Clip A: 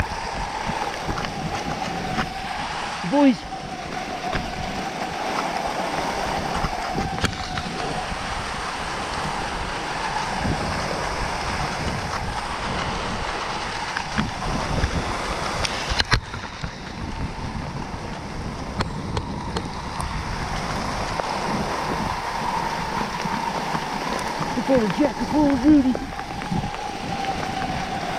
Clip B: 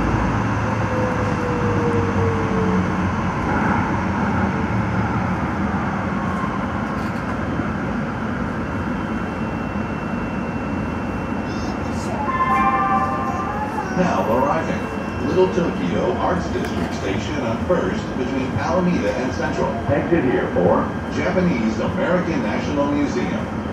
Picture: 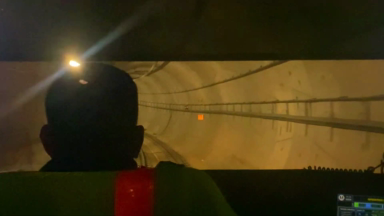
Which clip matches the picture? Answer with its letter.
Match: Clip B